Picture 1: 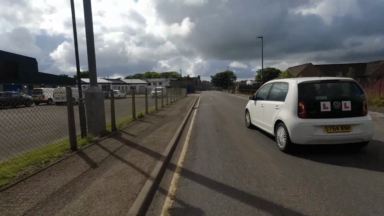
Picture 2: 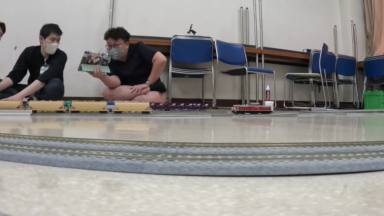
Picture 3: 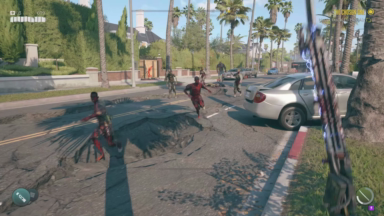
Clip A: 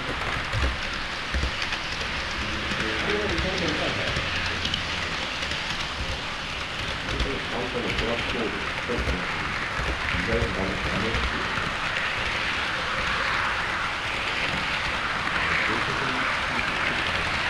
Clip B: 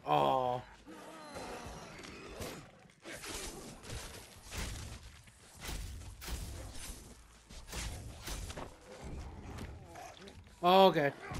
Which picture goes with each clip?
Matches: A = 2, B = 3